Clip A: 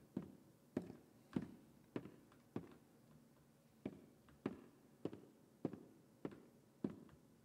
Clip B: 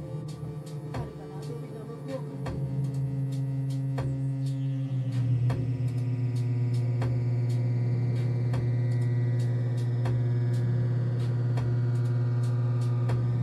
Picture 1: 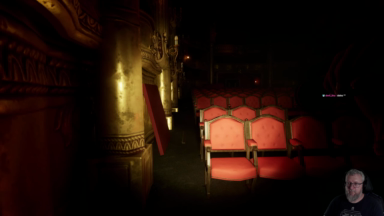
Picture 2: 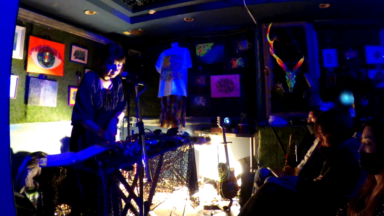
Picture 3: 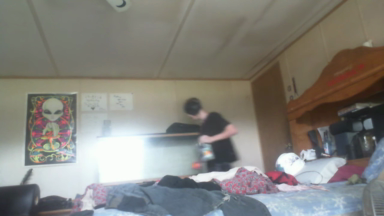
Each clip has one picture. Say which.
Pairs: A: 1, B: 2